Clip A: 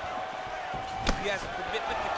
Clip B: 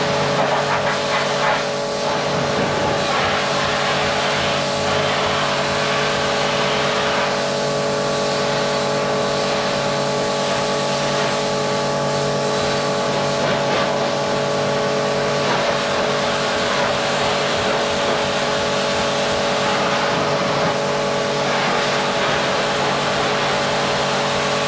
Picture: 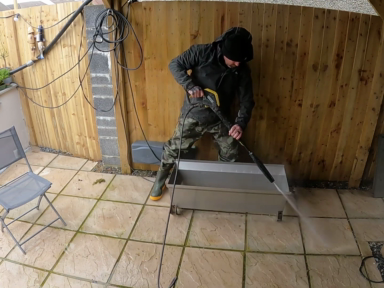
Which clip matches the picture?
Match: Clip B